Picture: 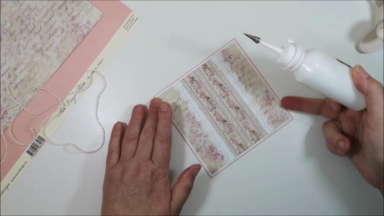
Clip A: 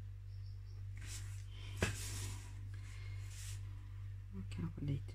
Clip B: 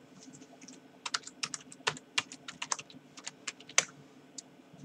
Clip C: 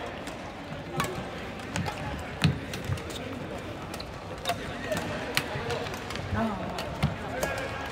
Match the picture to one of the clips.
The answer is A